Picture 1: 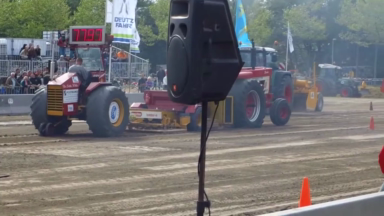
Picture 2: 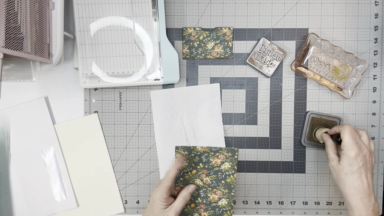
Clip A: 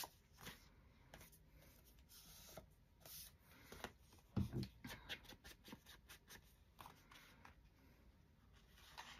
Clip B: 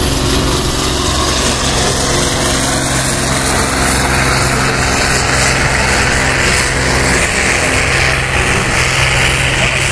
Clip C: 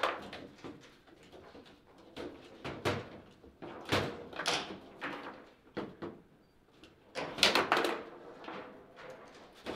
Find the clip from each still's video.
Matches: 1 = B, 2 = A